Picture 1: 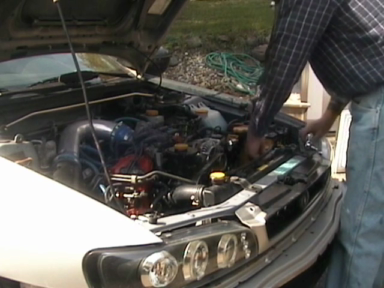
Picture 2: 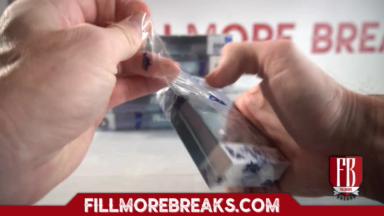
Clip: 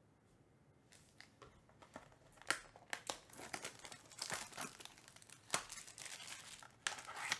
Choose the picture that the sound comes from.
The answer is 2